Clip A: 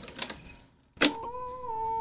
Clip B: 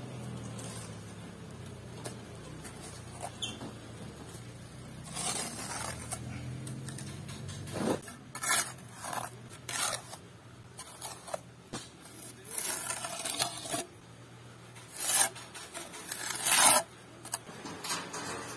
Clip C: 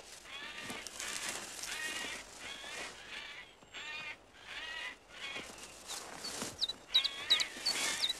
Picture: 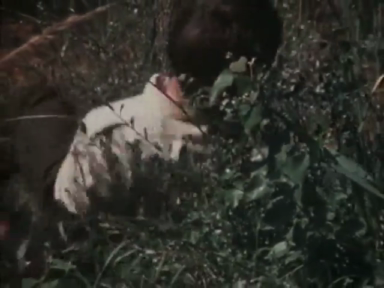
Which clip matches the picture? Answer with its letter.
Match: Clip C